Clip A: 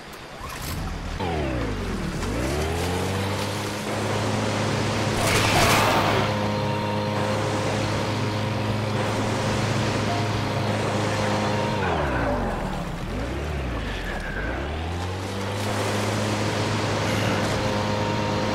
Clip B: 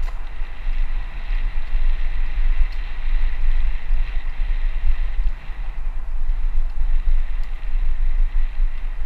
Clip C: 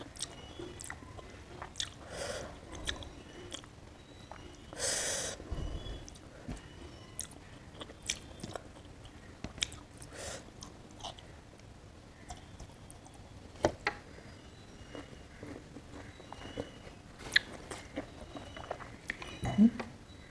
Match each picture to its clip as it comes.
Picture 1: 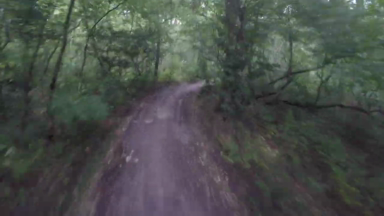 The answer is B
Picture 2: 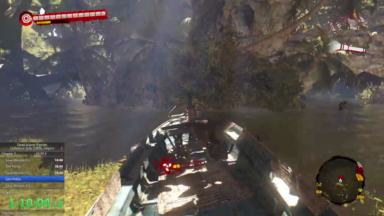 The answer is A